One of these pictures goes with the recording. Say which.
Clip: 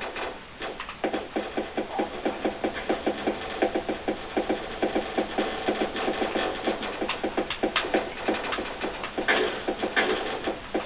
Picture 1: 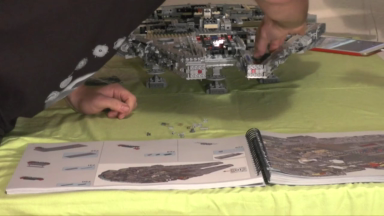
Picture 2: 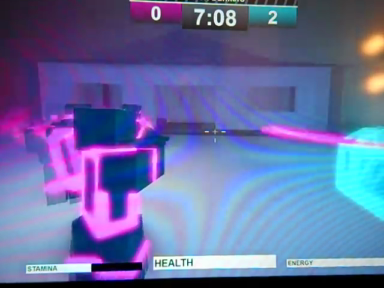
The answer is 2